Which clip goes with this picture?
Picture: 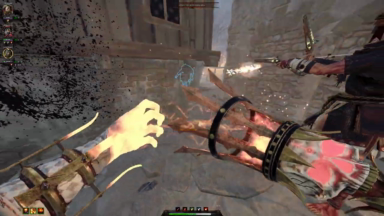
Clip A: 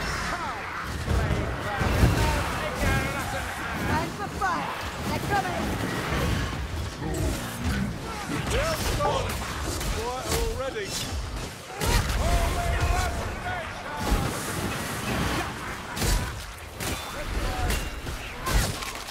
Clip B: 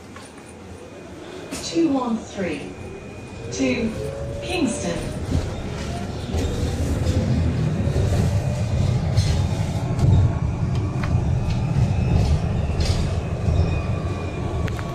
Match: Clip A